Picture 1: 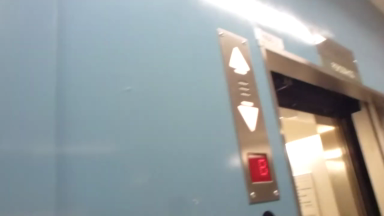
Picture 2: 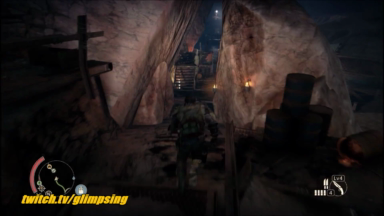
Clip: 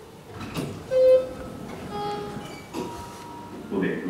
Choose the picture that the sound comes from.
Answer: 1